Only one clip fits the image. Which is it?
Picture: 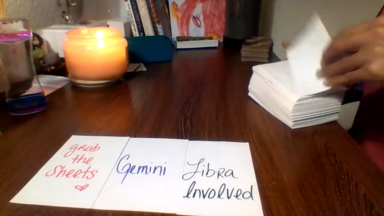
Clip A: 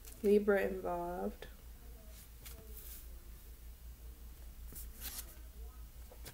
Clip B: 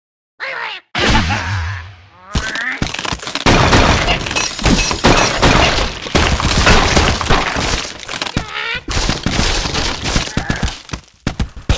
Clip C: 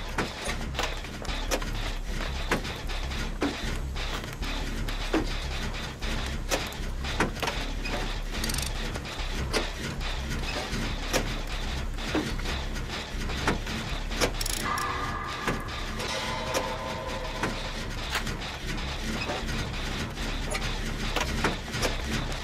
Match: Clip A